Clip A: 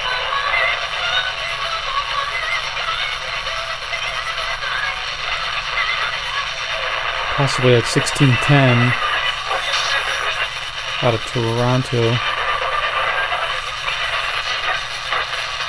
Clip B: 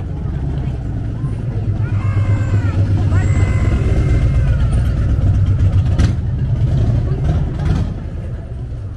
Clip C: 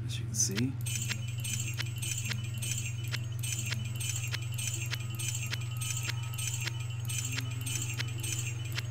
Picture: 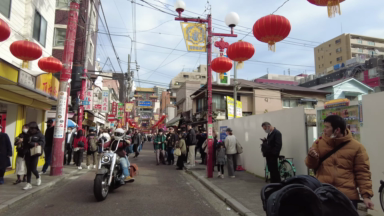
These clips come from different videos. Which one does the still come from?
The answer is B